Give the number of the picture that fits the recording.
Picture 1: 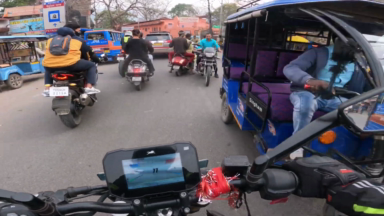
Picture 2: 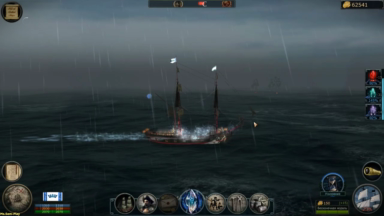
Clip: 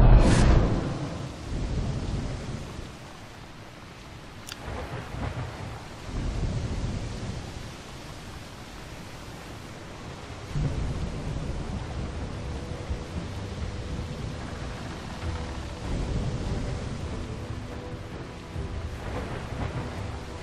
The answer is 2